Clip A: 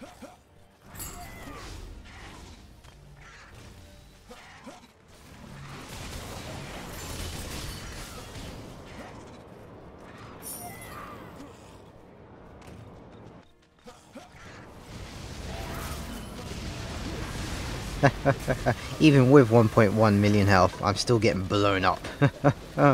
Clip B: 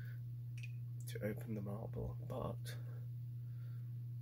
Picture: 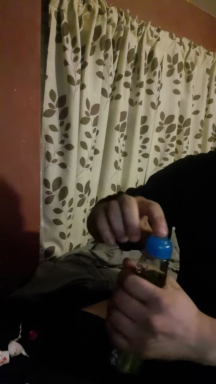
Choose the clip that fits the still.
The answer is B